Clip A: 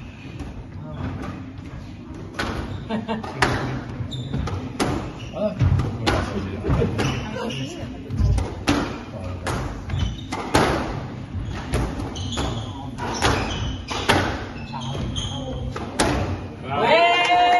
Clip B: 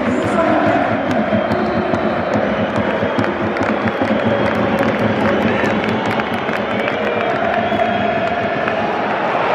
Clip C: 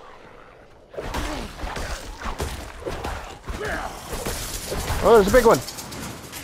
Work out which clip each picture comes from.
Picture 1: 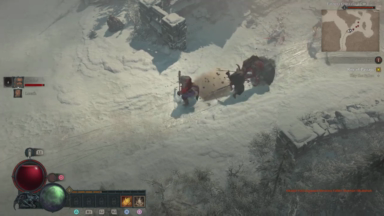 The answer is C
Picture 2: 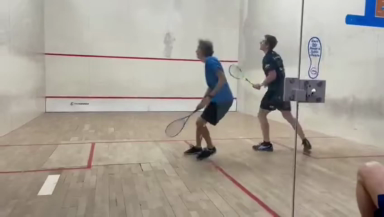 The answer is A